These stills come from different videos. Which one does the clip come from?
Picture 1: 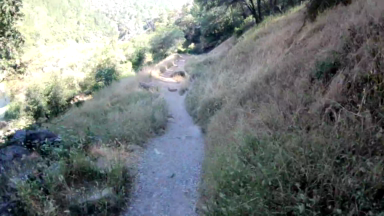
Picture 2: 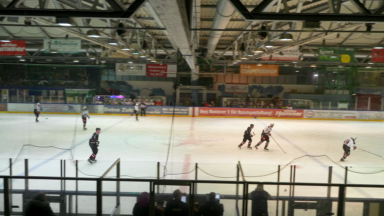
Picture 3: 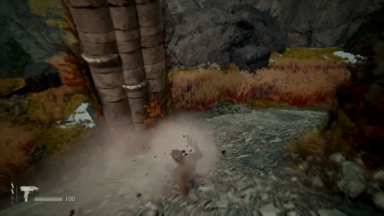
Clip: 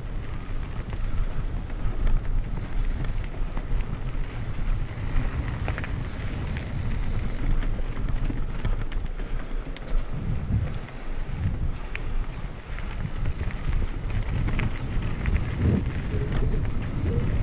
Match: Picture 1